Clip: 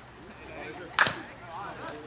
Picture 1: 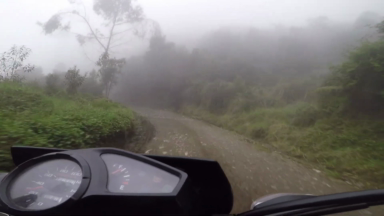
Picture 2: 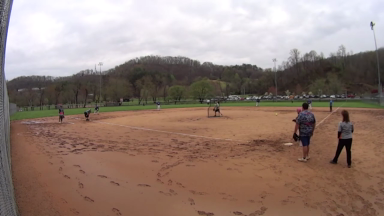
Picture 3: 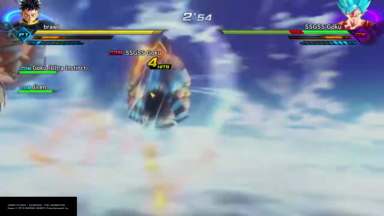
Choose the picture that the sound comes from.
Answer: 2